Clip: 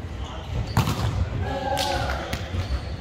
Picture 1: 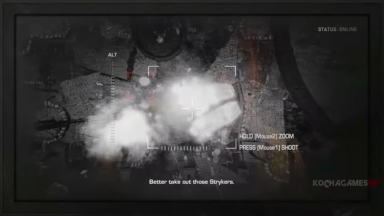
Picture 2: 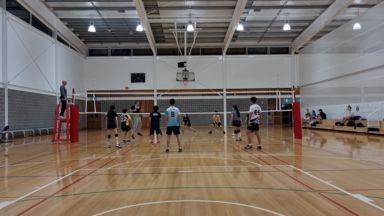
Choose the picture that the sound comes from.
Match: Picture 2